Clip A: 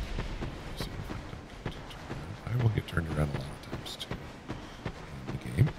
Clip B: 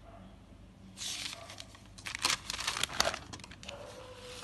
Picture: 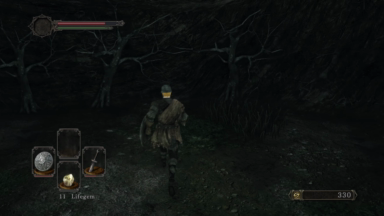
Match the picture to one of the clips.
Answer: A